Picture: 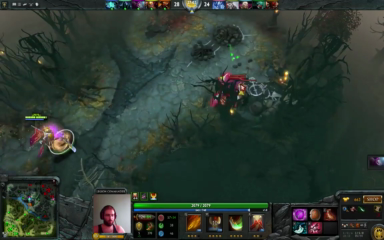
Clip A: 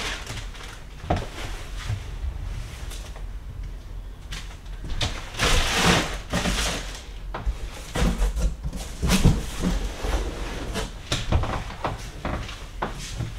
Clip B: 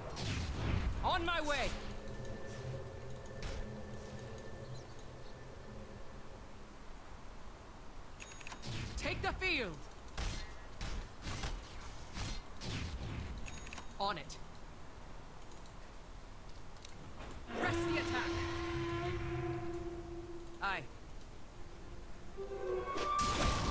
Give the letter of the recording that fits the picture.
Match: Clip B